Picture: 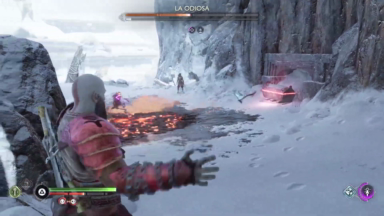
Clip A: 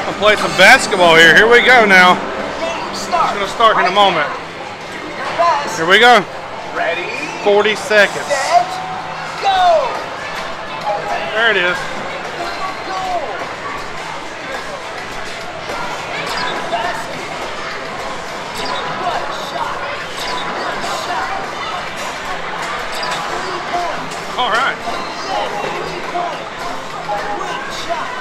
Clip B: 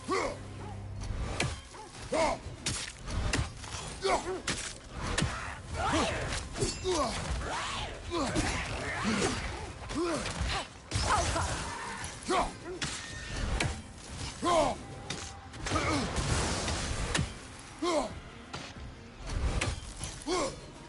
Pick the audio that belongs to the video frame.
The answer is B